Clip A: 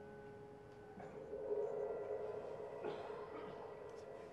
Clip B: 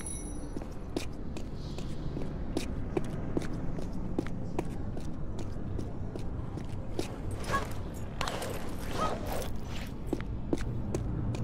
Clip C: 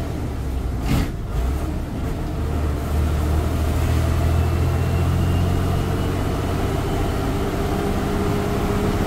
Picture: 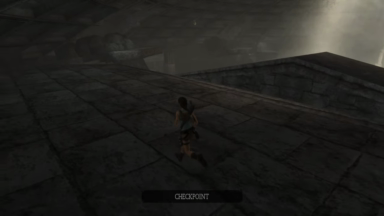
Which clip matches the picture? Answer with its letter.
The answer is B